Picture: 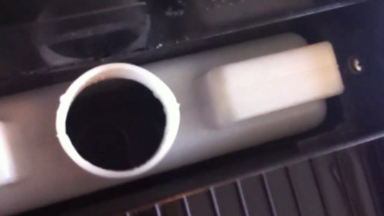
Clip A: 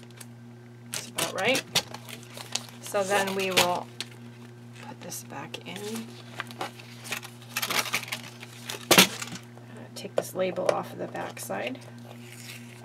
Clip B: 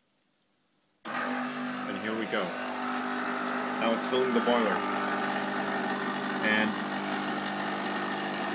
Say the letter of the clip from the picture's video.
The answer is B